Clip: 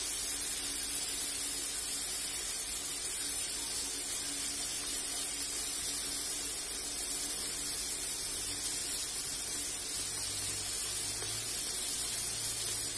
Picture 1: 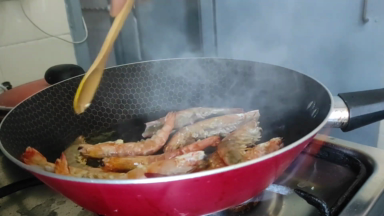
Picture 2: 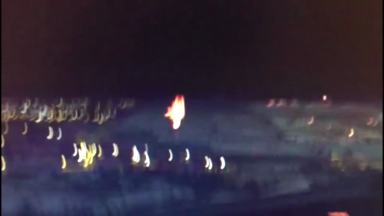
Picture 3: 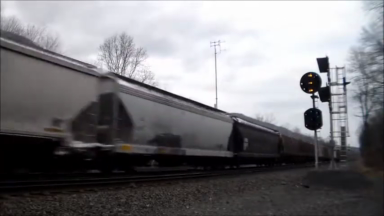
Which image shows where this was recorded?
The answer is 1